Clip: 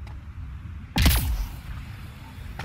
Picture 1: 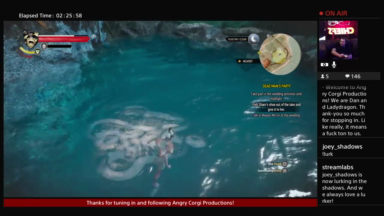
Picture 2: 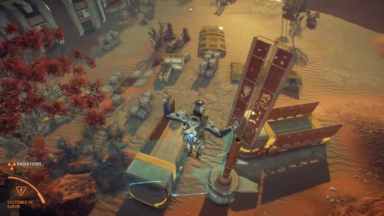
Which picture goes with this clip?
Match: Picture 2